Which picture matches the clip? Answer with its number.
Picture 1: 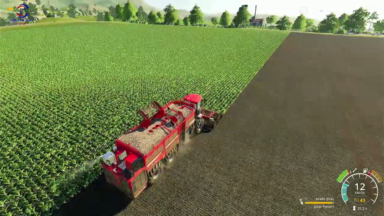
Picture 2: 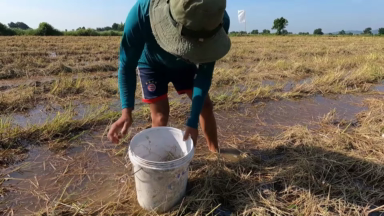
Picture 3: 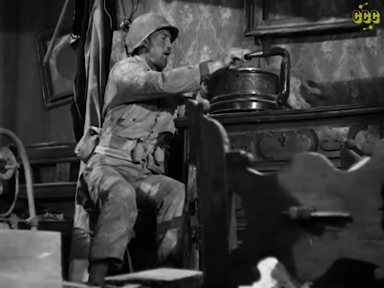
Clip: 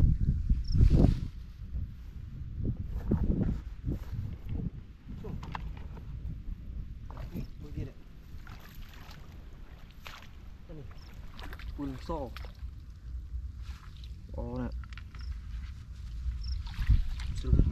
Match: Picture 2